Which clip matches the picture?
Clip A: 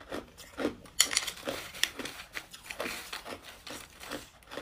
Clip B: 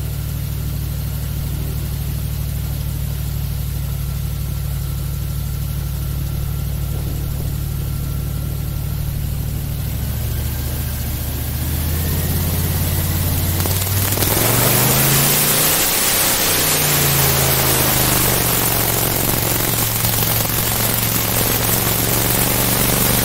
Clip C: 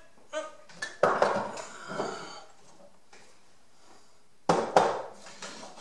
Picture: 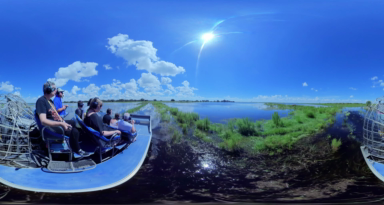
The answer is B